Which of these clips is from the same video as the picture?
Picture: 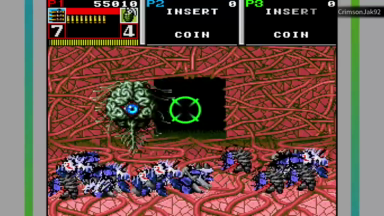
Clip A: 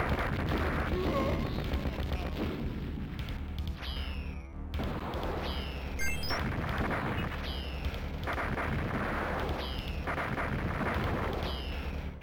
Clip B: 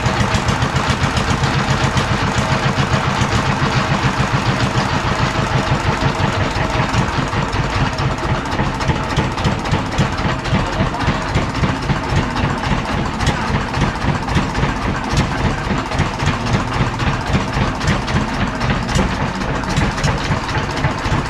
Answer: A